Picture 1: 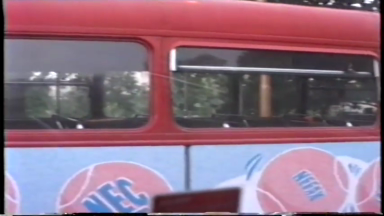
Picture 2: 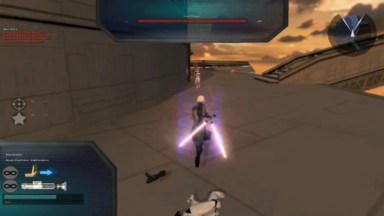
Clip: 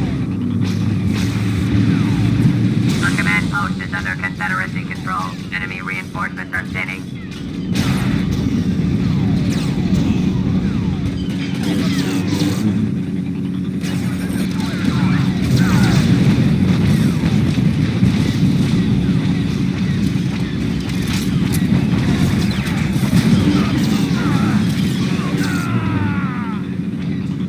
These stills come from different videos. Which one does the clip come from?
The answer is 2